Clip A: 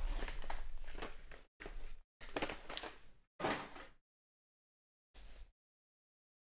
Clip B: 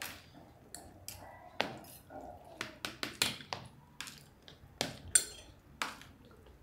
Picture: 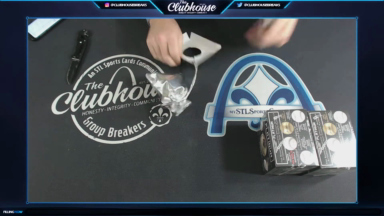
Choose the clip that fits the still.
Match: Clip A